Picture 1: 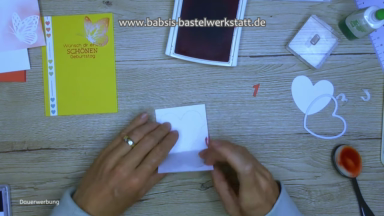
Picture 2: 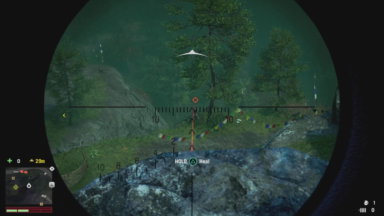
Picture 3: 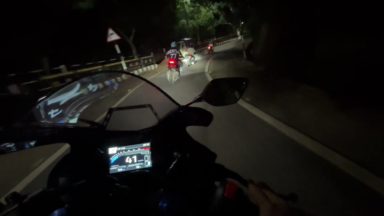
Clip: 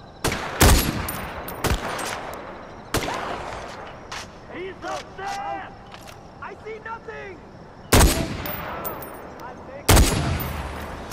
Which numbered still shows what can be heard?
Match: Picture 2